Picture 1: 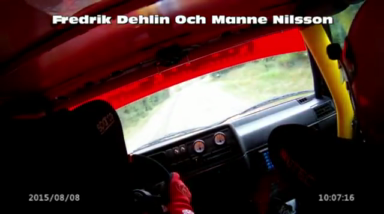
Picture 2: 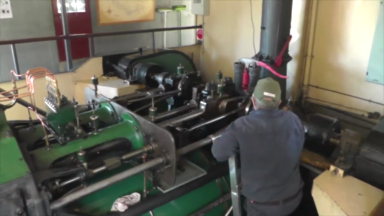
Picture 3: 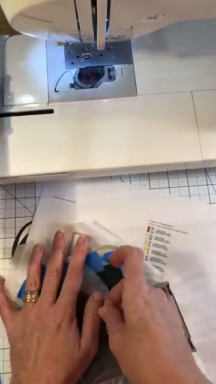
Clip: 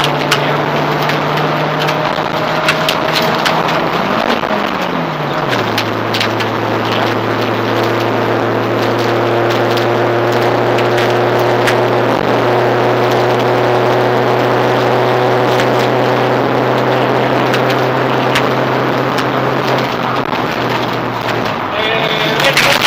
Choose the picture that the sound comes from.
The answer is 1